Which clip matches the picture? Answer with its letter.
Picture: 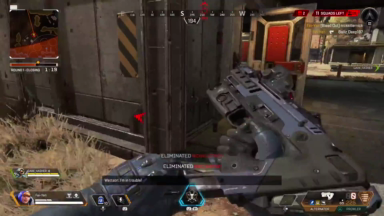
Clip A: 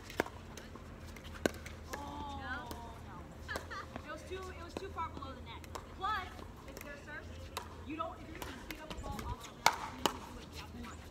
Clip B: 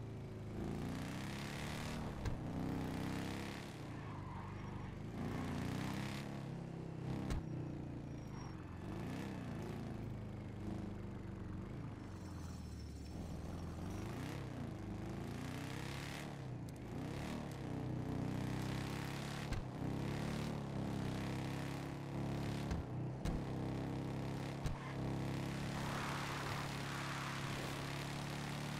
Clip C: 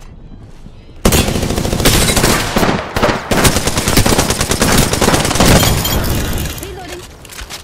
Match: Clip C